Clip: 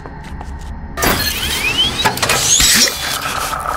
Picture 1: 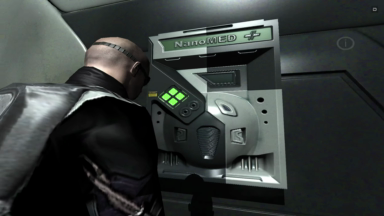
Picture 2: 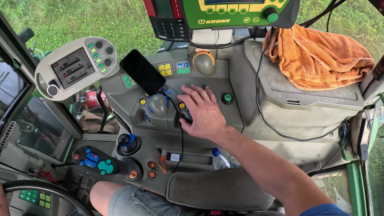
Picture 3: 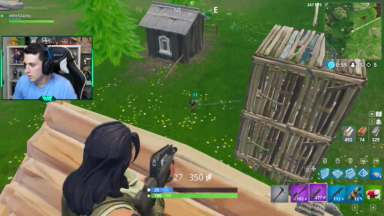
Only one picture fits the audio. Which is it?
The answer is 1